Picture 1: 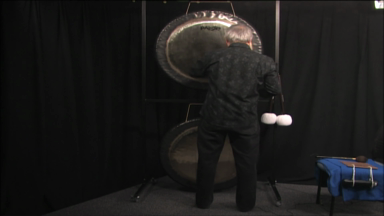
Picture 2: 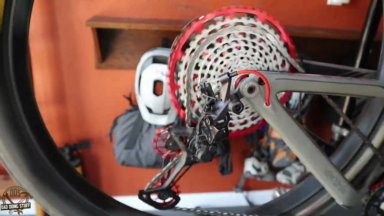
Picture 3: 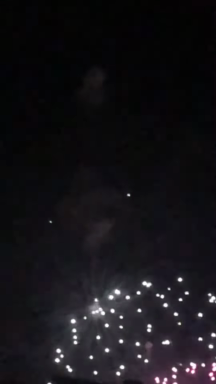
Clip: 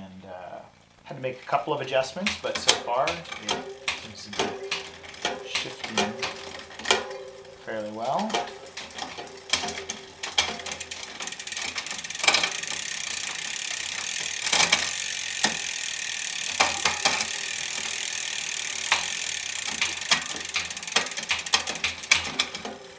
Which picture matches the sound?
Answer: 2